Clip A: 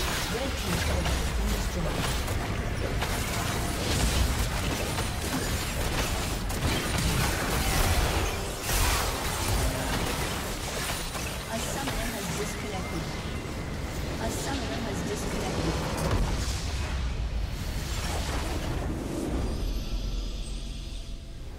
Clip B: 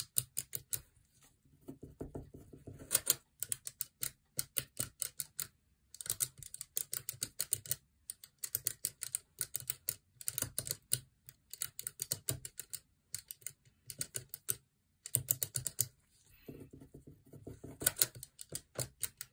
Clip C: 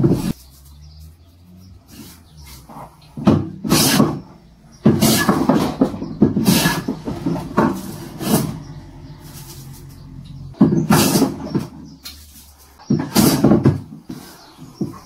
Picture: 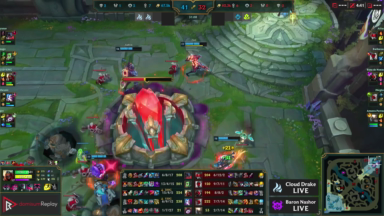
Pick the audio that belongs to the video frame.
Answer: A